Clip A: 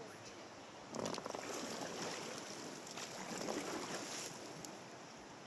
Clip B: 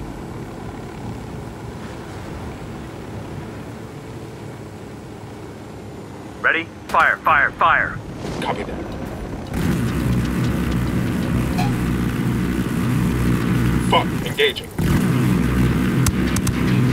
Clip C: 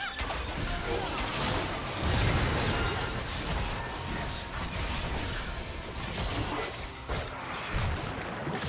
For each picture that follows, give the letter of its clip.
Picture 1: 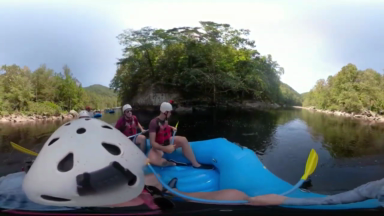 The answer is A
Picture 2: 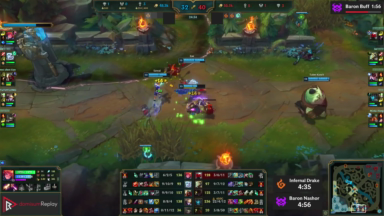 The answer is C